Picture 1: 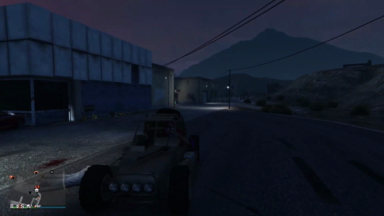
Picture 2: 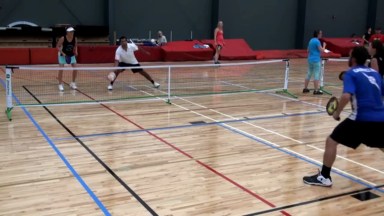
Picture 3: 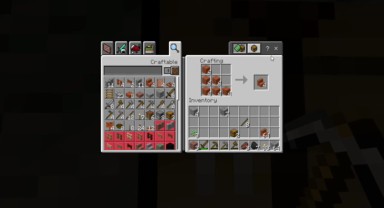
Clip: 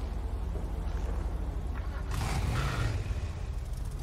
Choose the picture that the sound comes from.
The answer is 1